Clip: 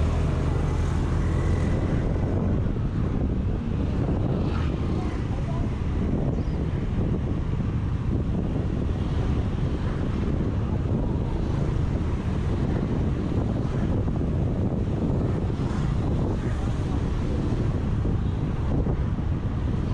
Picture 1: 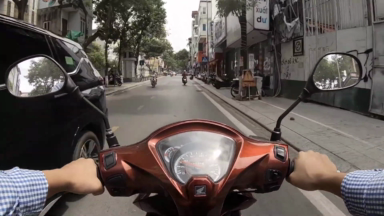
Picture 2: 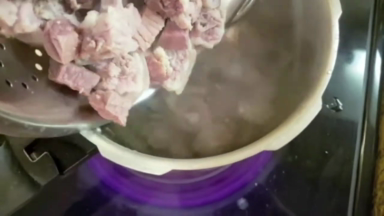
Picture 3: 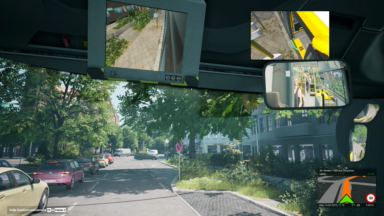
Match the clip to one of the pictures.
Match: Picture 1